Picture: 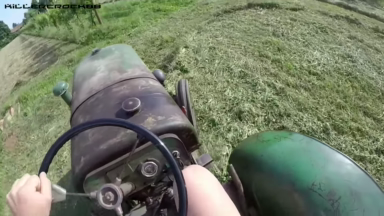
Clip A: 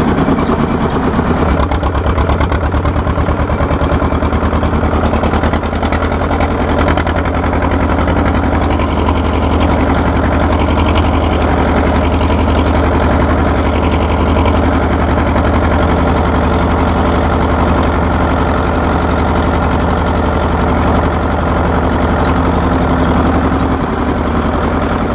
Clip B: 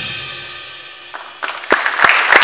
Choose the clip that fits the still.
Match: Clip A